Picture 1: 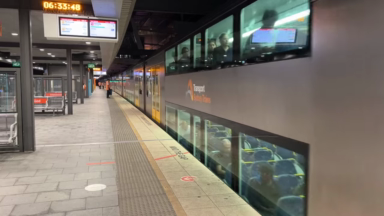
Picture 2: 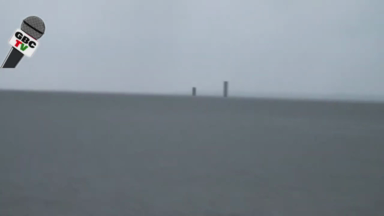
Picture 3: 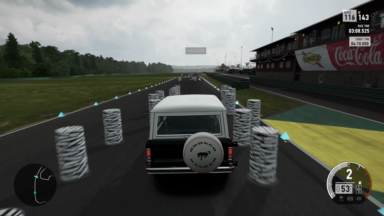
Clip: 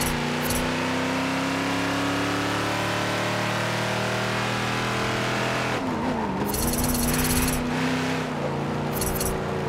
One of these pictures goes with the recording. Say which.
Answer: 3